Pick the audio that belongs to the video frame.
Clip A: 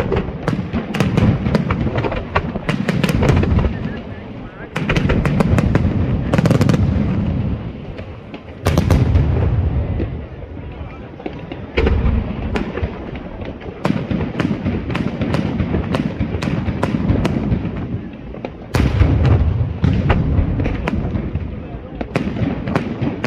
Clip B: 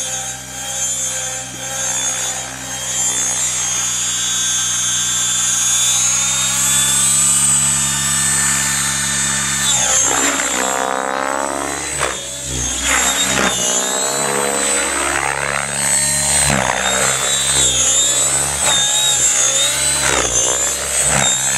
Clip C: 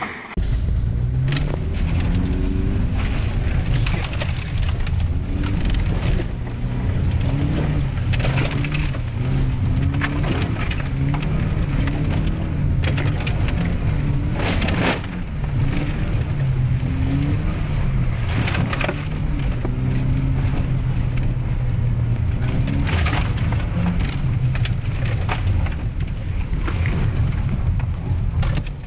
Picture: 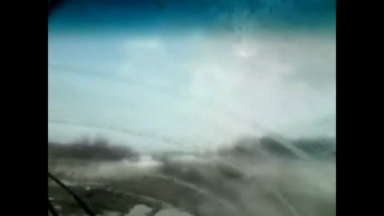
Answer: C